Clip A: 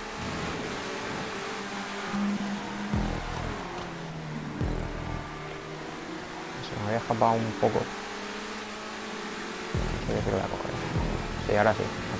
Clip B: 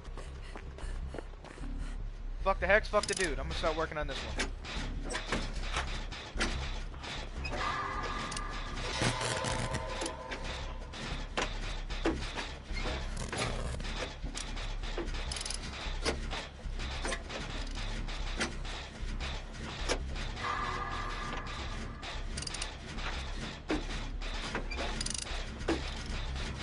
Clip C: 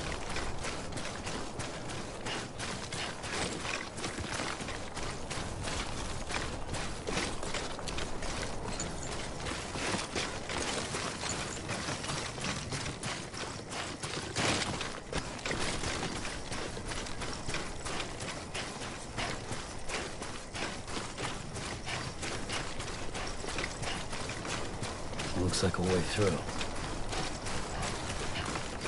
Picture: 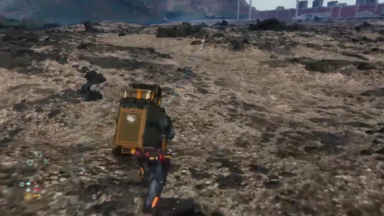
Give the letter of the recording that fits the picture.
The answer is C